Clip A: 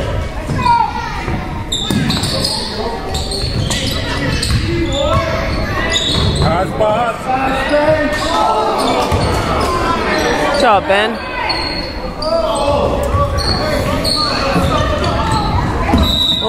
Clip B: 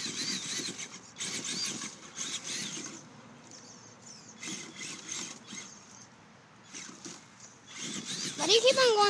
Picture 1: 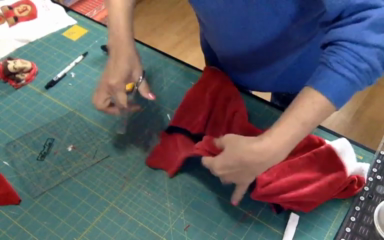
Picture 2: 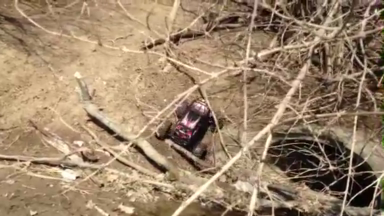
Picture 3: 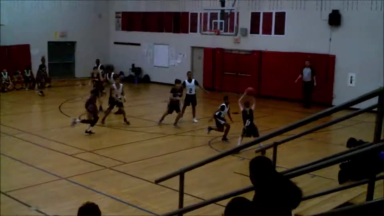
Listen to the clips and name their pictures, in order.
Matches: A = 3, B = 2